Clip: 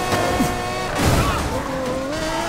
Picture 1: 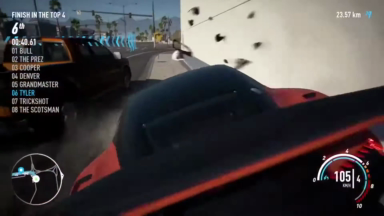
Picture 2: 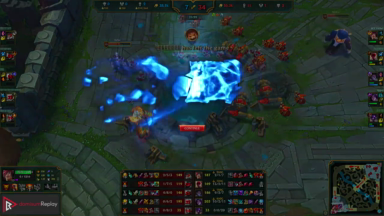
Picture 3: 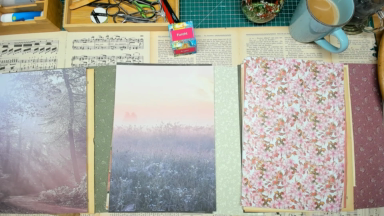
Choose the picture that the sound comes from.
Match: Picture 1